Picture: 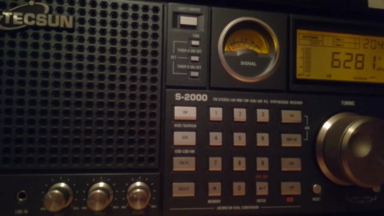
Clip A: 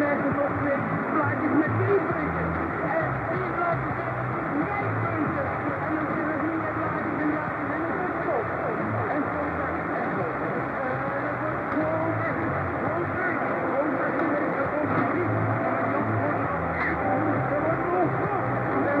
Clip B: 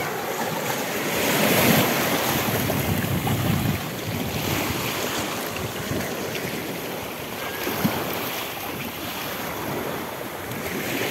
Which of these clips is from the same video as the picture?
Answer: A